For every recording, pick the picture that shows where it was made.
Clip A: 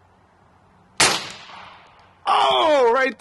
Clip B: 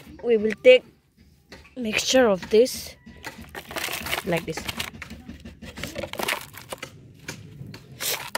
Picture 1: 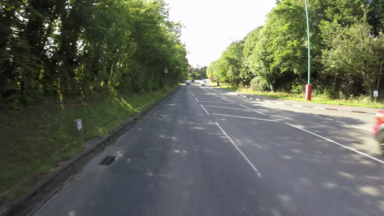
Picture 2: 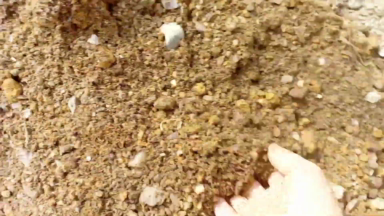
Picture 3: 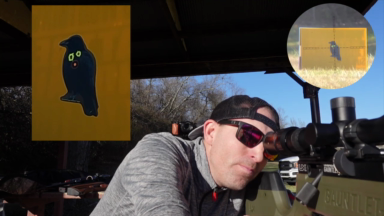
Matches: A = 3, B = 2